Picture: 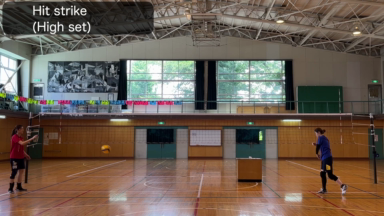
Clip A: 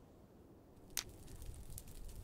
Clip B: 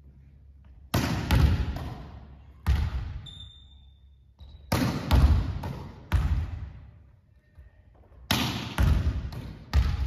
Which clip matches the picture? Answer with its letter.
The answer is B